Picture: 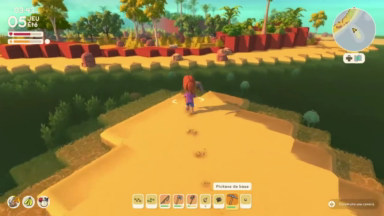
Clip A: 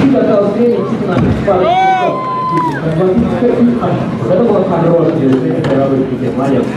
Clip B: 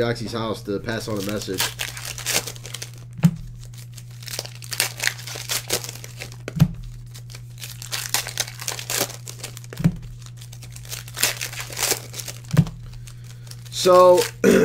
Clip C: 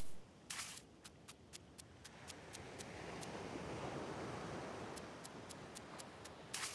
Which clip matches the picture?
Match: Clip C